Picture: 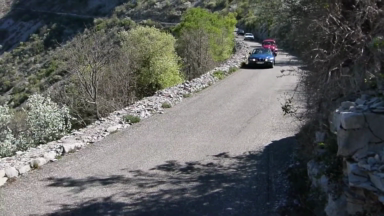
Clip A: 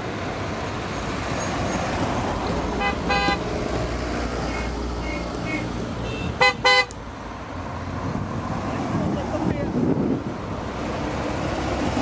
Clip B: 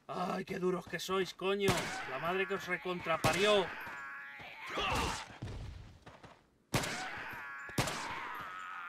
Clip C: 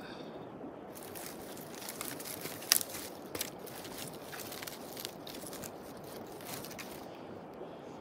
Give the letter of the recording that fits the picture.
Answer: A